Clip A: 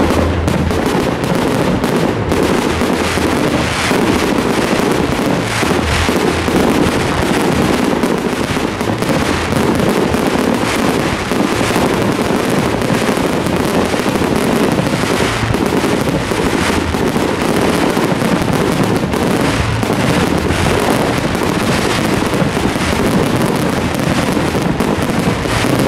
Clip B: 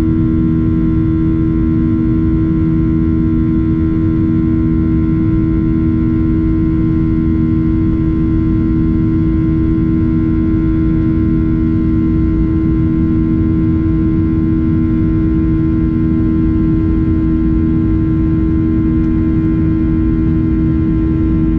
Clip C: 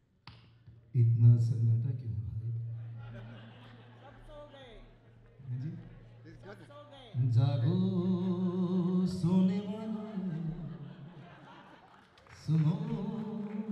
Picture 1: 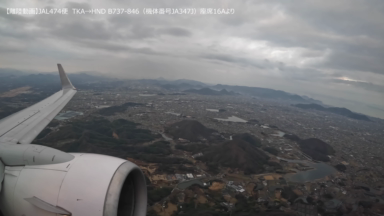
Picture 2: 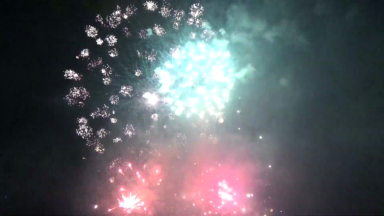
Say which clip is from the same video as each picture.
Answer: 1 B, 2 A